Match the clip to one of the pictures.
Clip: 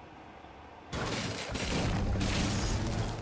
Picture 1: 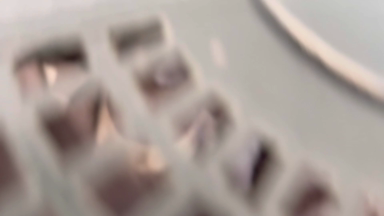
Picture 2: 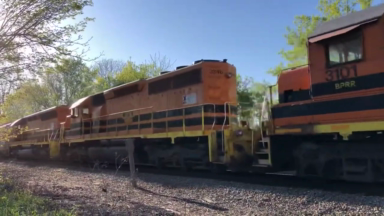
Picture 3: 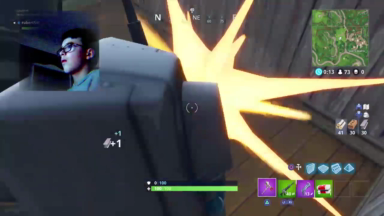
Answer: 3